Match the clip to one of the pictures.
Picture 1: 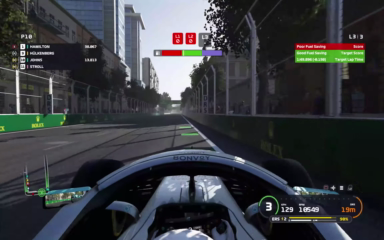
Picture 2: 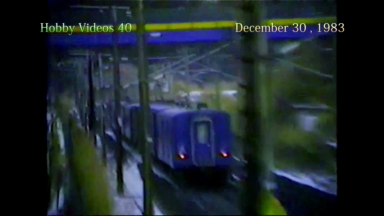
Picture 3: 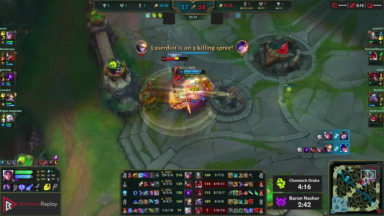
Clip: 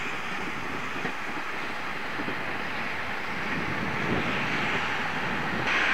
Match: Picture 2